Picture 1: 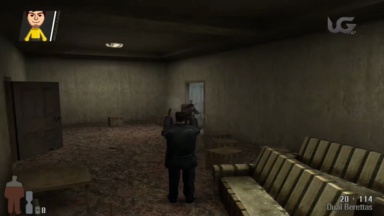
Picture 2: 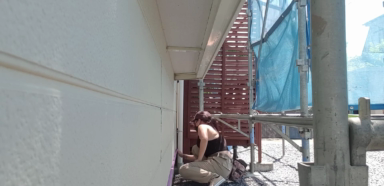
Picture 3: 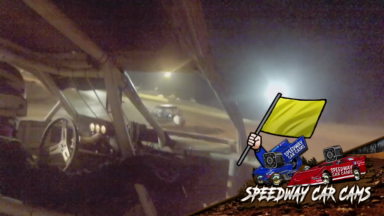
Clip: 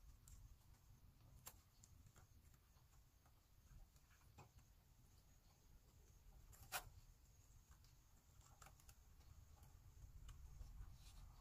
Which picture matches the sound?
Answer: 2